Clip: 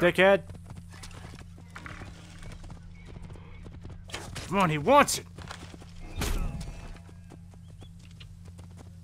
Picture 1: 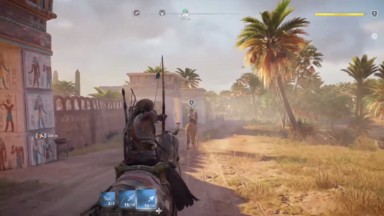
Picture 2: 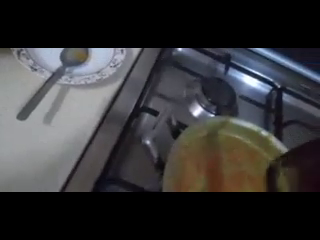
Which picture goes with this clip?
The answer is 1